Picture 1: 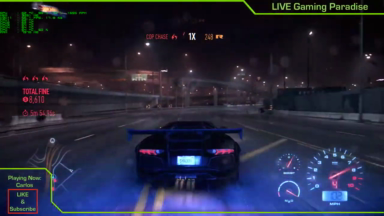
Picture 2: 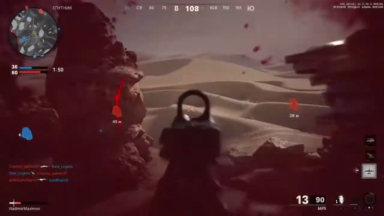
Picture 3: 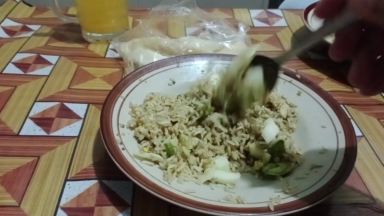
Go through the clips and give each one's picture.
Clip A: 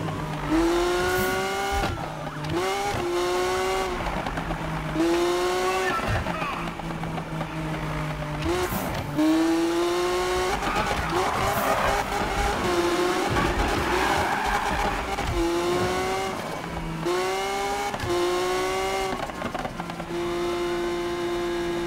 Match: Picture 1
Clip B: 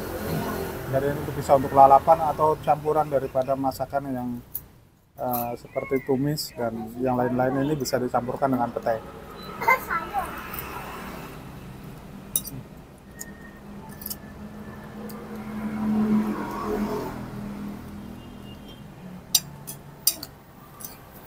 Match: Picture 3